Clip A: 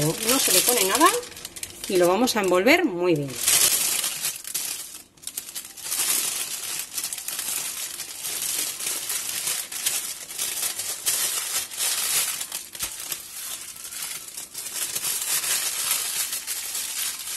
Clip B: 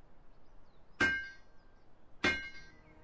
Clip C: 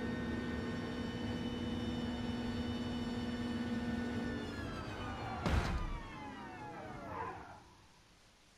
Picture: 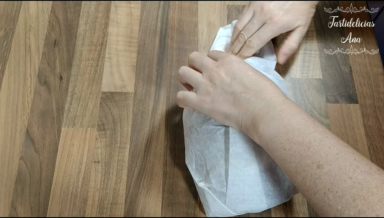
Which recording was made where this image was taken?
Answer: A